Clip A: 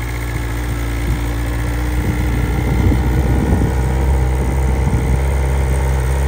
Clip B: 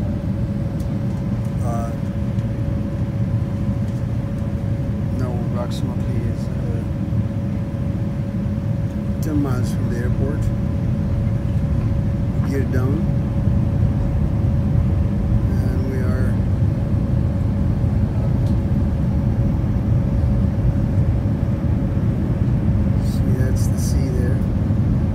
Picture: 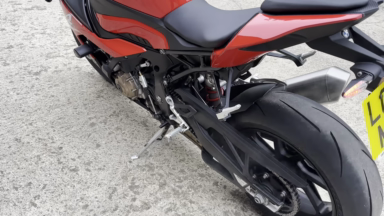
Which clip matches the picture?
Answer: A